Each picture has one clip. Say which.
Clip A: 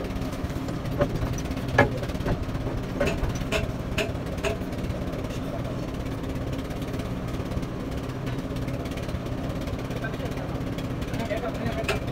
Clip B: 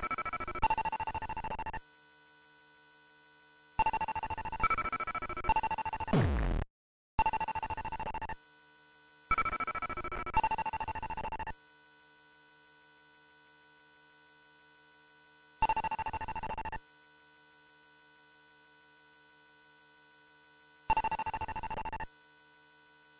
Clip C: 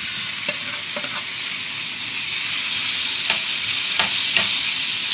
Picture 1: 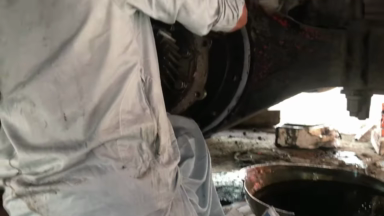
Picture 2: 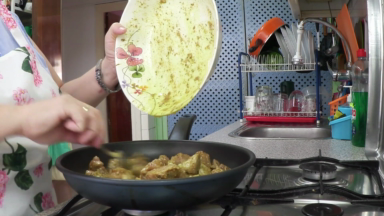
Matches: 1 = A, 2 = C